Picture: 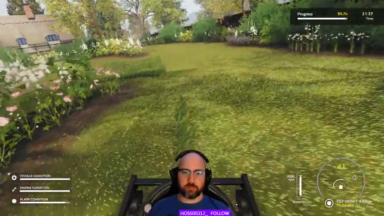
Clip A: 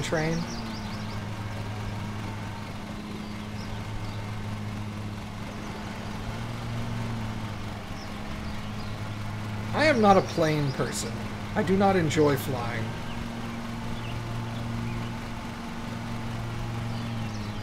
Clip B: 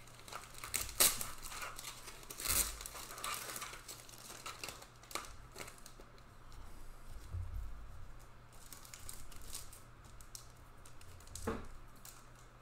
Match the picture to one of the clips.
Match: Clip A